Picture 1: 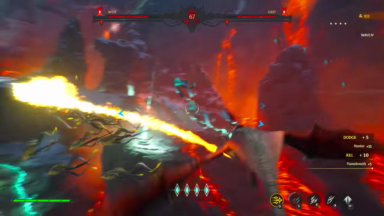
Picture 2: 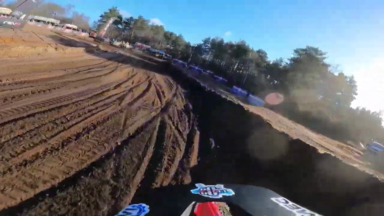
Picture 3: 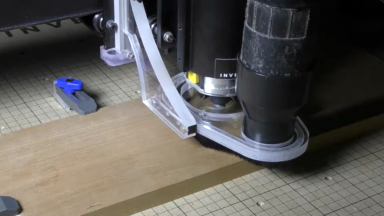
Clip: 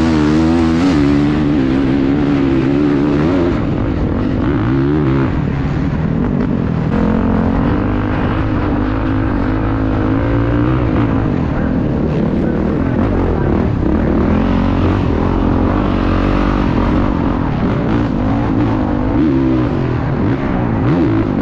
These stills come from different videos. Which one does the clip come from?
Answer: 2